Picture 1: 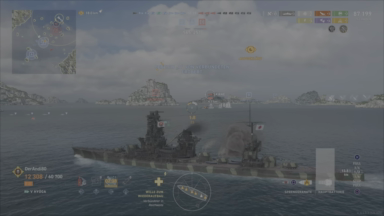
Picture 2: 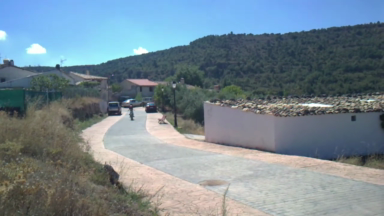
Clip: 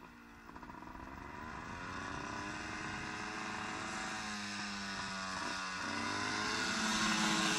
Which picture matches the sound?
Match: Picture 2